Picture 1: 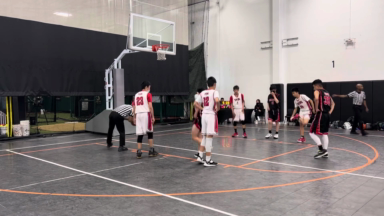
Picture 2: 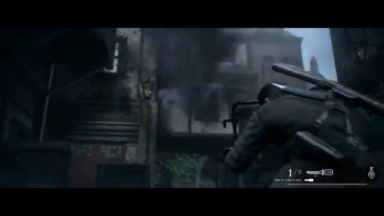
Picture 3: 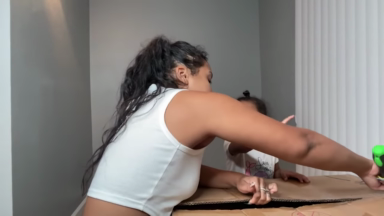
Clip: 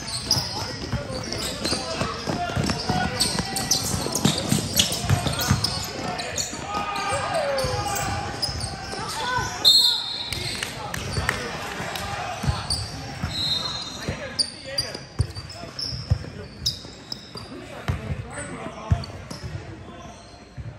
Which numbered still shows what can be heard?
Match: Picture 1